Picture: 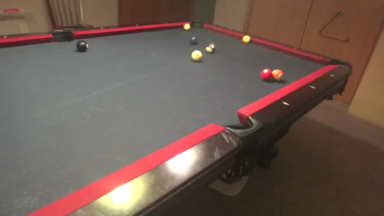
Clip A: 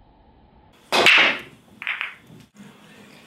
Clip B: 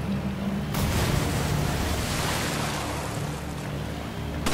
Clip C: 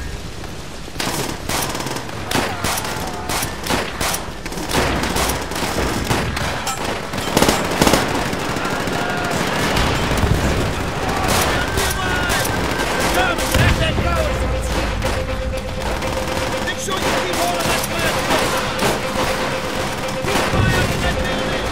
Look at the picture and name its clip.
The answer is A